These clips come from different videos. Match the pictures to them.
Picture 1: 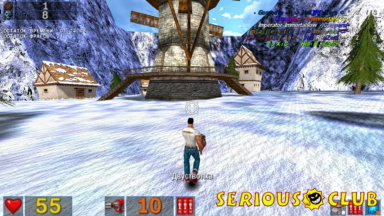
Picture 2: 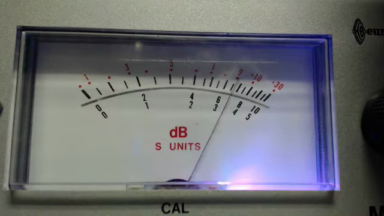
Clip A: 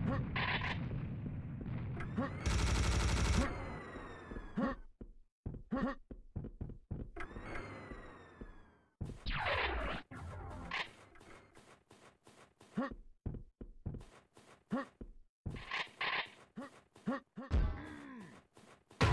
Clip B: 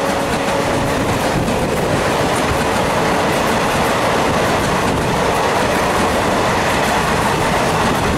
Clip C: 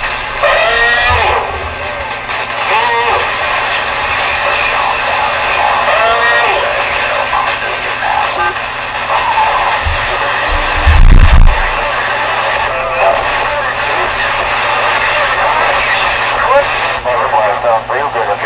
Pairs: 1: A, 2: C